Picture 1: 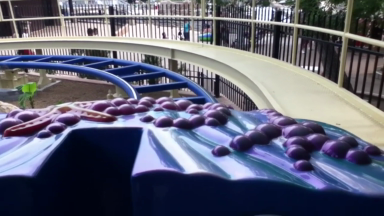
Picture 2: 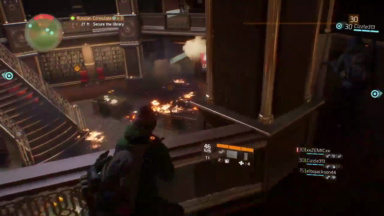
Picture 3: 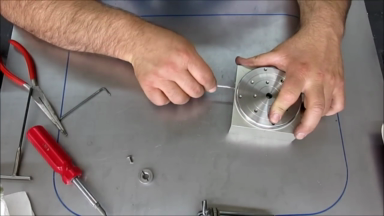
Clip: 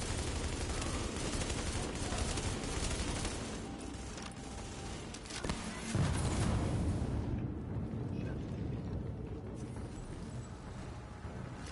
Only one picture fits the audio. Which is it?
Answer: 2